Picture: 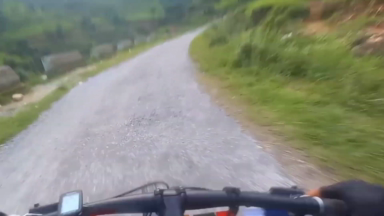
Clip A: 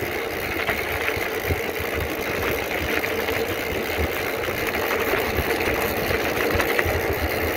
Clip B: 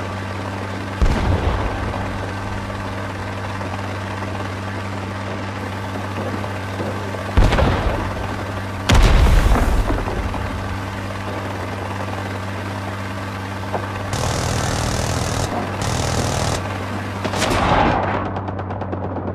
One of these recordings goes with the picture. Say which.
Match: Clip A